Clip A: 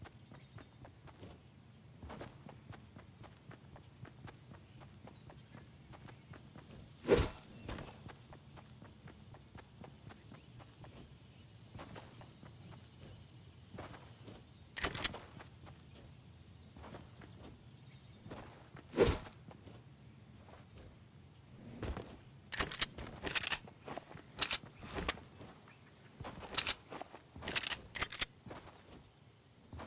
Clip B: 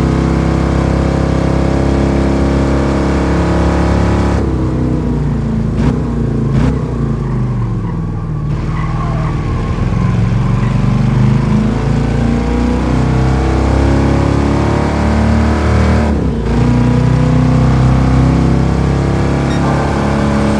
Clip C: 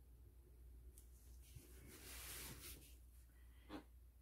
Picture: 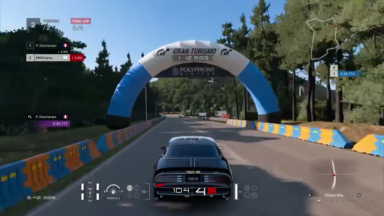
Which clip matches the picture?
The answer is B